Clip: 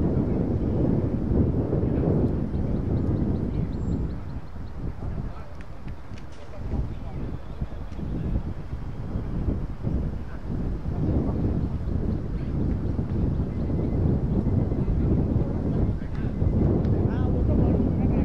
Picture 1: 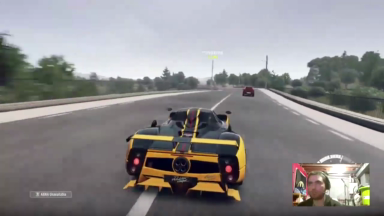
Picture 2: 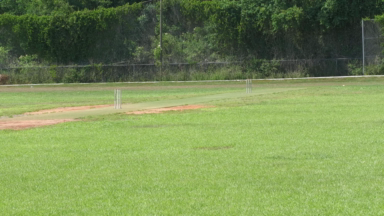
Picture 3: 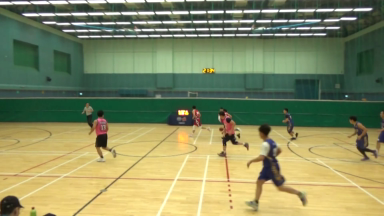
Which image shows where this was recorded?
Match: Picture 2